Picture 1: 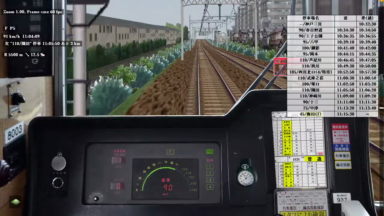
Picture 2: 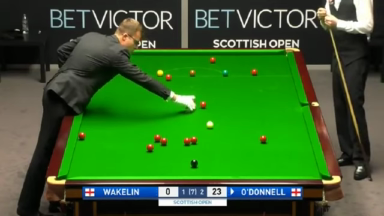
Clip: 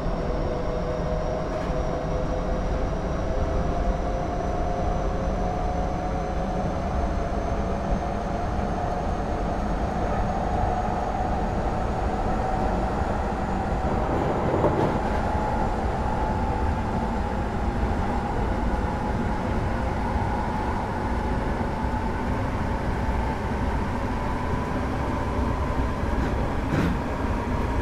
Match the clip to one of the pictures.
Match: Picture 1